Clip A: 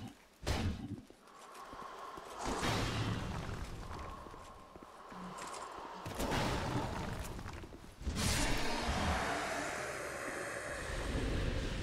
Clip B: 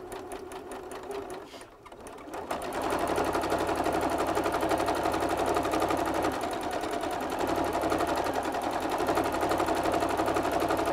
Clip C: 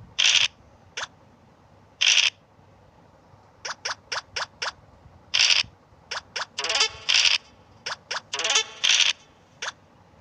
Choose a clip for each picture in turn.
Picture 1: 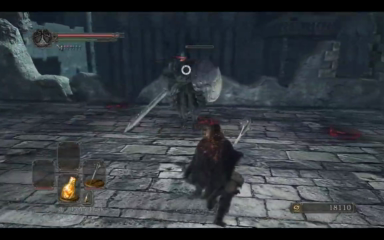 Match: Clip A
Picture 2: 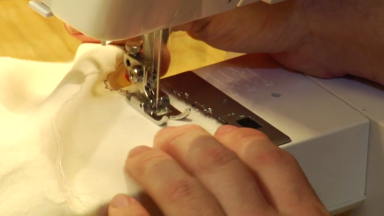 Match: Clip B